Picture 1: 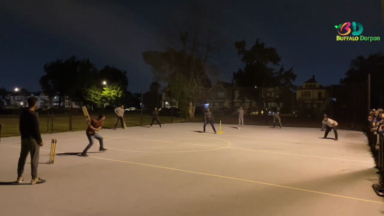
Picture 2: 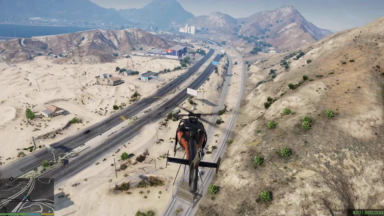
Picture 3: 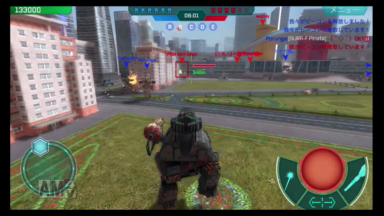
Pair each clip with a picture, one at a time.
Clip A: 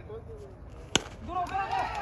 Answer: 1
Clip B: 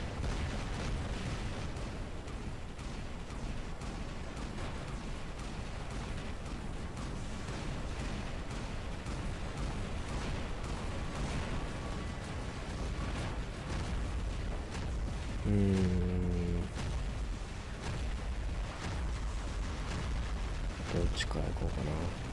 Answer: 3